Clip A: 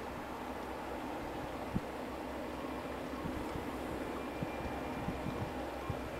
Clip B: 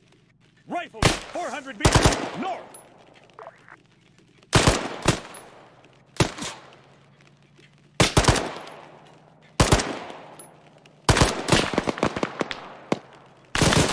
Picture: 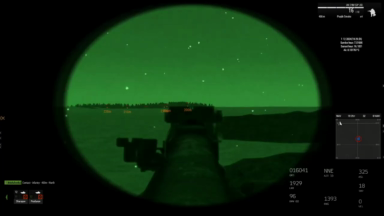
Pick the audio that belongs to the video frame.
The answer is B